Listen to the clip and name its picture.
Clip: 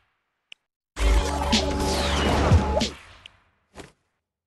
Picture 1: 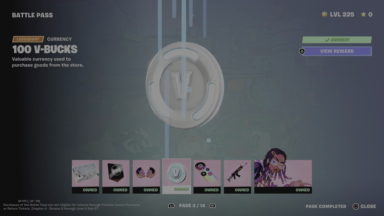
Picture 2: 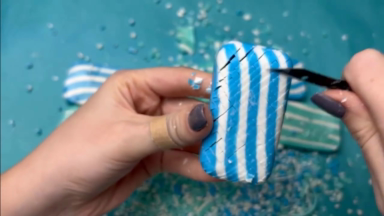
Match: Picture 1